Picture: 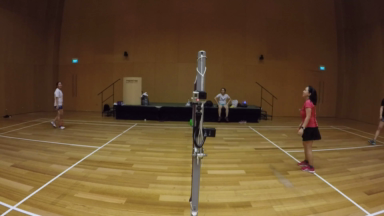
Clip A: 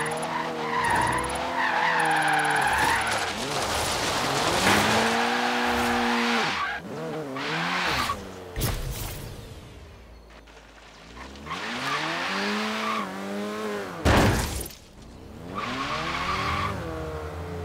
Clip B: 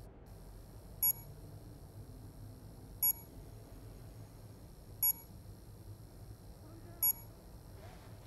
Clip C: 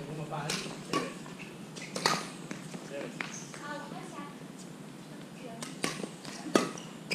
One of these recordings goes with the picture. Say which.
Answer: C